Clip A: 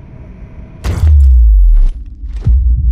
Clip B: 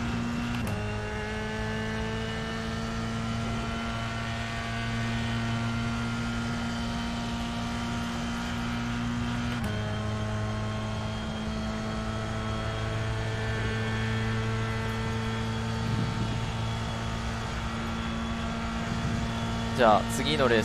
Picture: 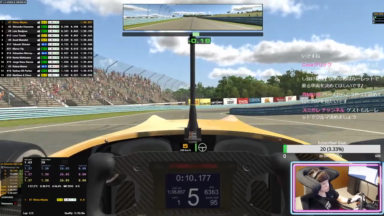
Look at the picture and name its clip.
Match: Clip B